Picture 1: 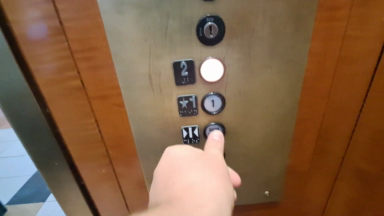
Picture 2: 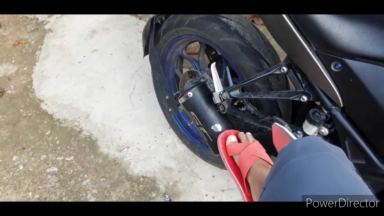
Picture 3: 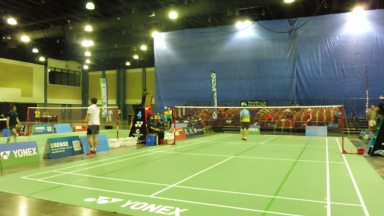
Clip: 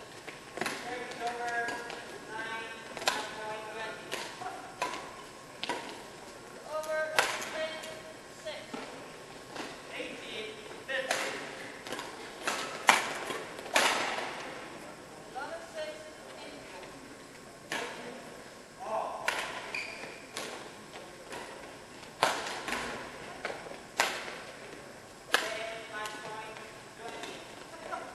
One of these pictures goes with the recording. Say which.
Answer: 3